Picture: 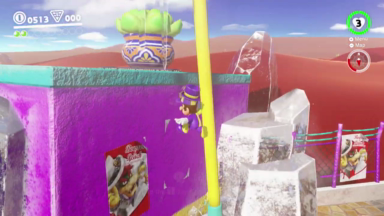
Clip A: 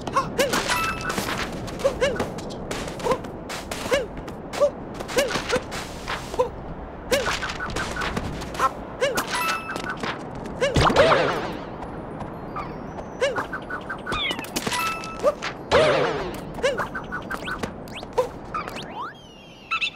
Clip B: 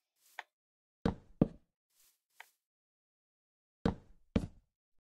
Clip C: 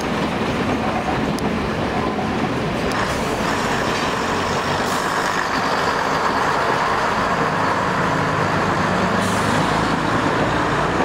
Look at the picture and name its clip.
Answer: A